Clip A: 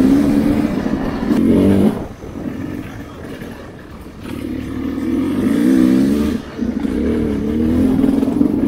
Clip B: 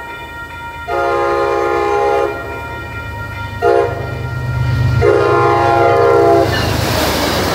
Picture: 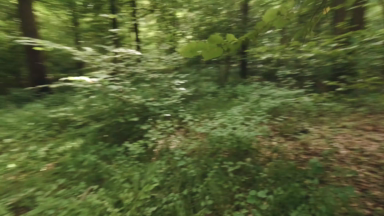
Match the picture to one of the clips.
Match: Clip A